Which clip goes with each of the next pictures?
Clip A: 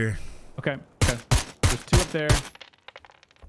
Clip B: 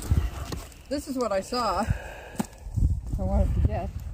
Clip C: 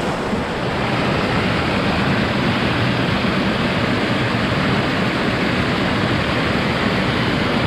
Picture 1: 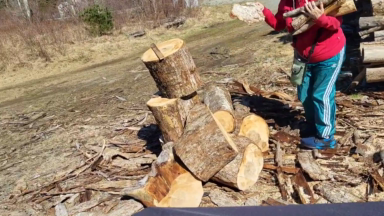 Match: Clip B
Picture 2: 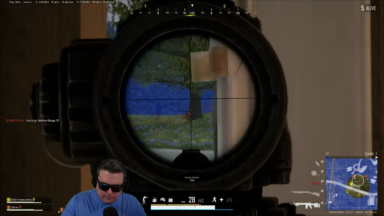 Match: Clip A